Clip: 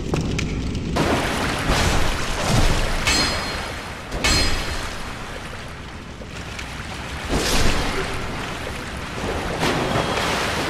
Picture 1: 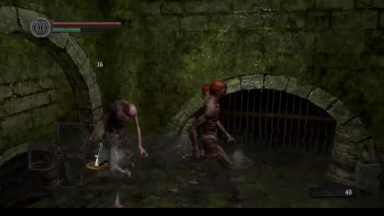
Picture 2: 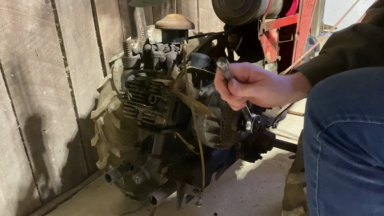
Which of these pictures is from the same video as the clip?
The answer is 1